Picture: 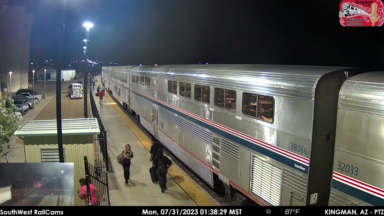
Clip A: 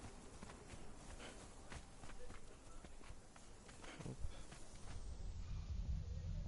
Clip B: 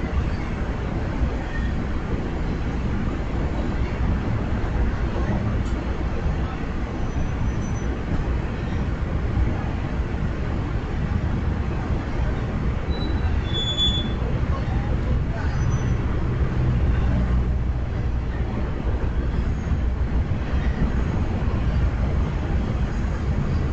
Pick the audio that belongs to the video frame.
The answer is B